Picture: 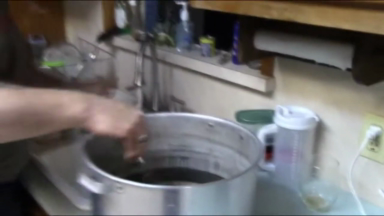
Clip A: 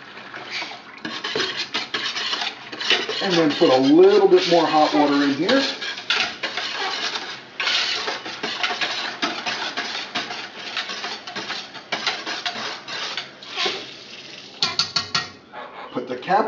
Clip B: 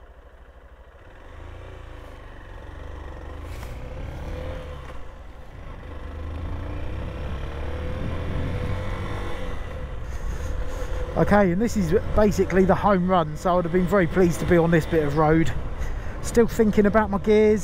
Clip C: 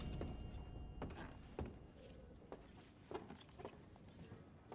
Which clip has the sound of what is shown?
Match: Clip A